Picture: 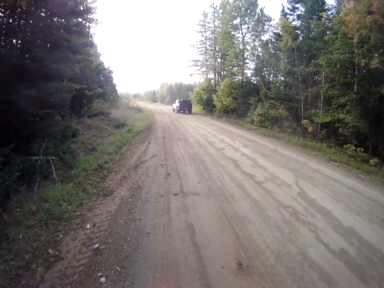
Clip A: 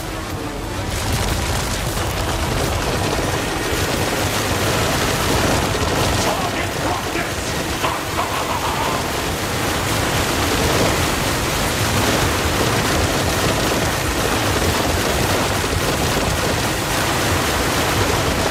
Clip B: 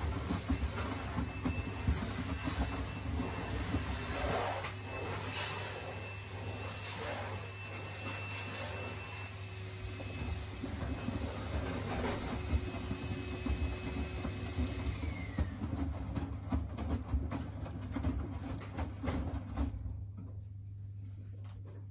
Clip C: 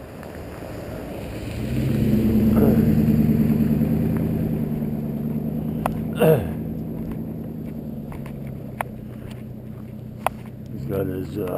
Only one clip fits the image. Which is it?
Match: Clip C